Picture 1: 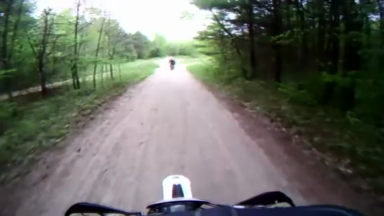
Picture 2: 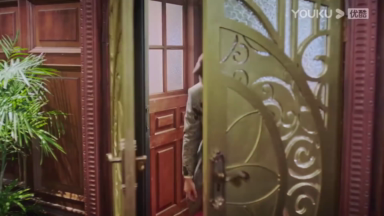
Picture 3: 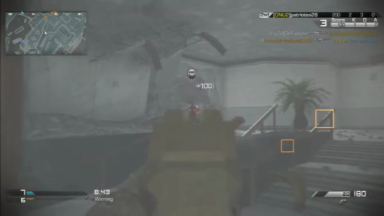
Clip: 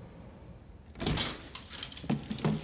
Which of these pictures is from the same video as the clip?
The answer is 2